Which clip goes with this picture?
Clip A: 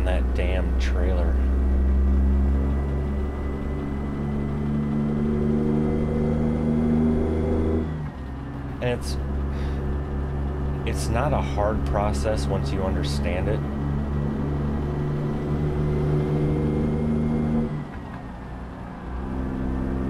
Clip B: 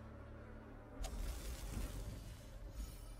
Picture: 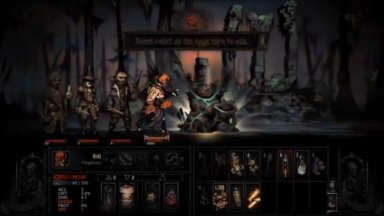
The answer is B